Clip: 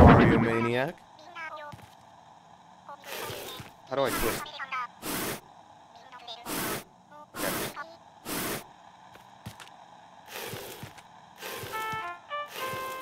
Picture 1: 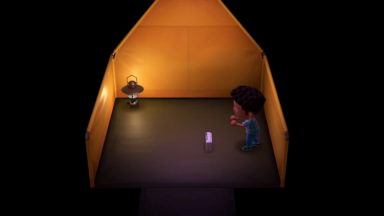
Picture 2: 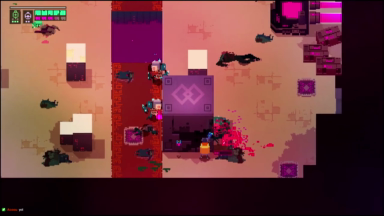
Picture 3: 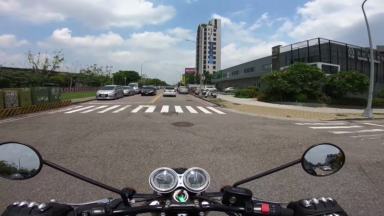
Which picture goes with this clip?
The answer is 1